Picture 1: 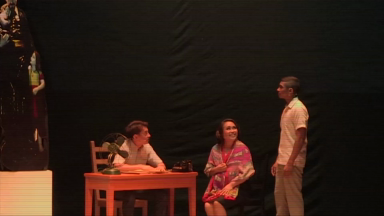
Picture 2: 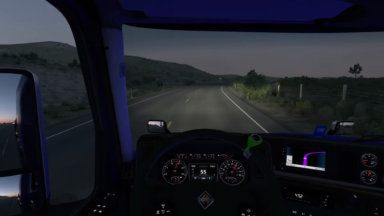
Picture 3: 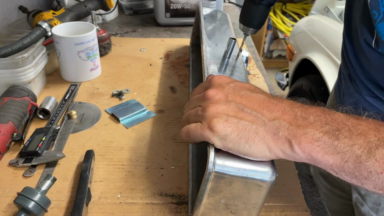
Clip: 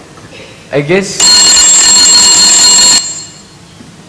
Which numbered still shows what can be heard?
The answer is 1